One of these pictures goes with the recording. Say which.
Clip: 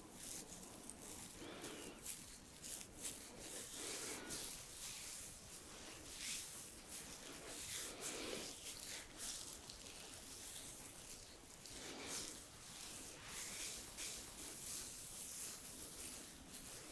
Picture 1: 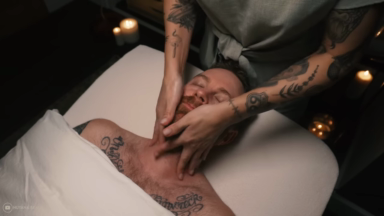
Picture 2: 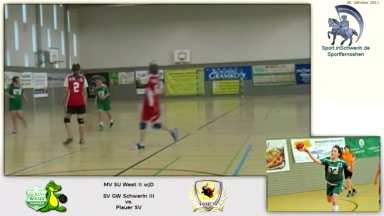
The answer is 1